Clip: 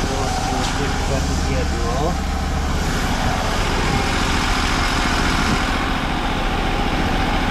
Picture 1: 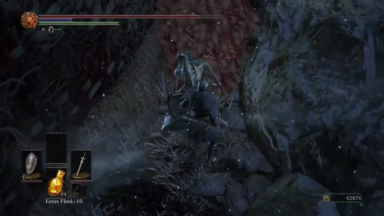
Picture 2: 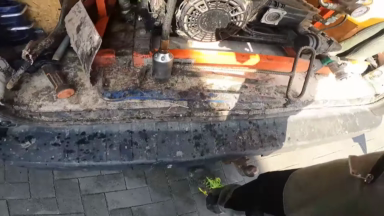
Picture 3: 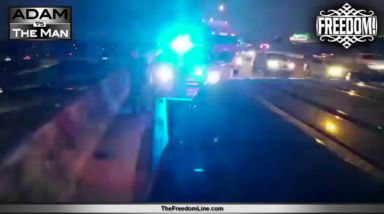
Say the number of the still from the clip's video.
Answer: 2